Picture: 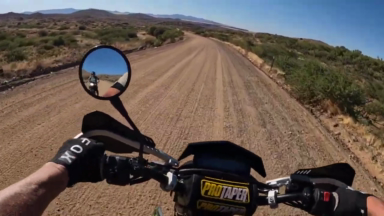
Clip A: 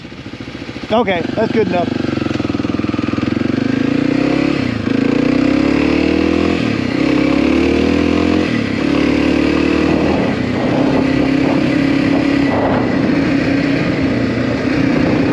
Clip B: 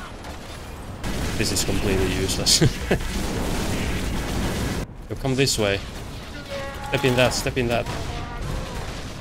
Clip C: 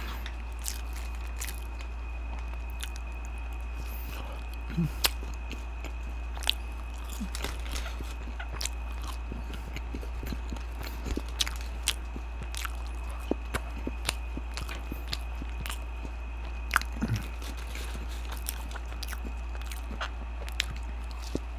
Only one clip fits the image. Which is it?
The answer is A